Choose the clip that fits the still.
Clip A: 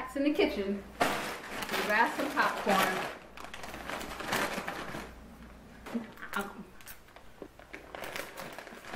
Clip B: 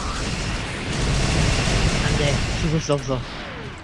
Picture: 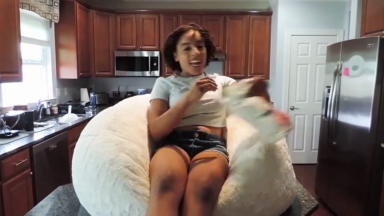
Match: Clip A